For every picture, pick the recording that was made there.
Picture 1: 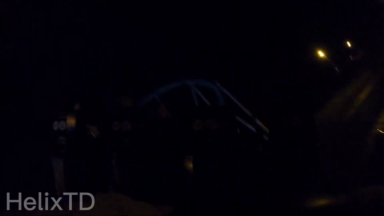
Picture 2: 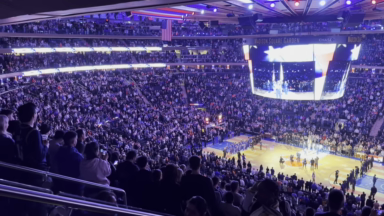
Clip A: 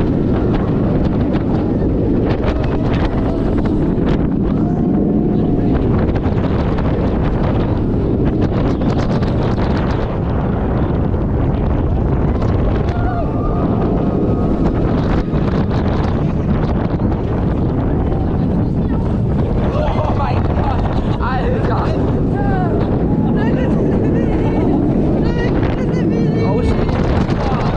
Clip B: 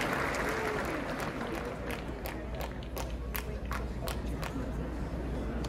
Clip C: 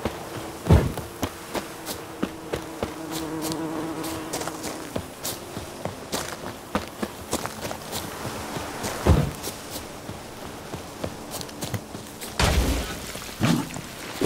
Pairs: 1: A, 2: B